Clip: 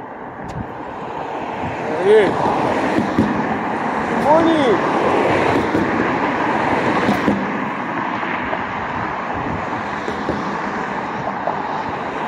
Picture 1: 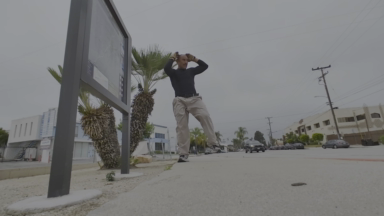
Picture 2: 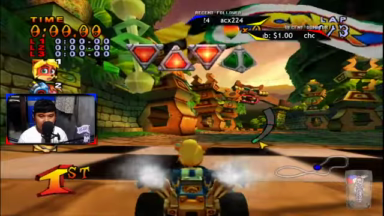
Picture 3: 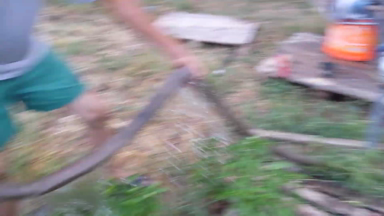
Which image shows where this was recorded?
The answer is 1